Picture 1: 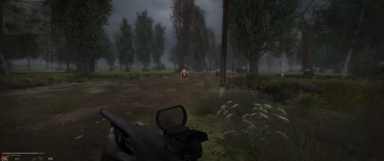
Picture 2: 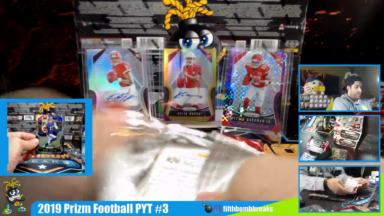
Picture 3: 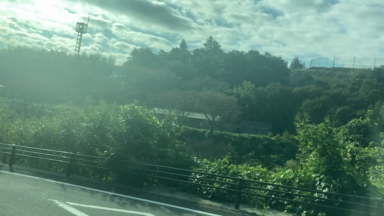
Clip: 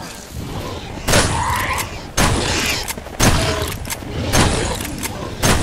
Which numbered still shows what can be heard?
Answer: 1